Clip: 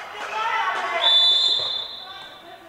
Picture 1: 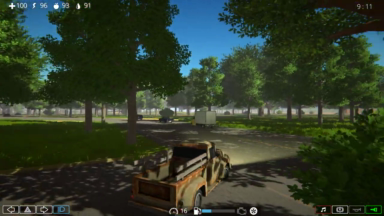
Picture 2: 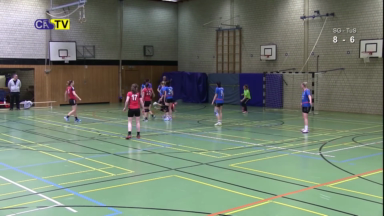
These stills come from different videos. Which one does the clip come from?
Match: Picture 2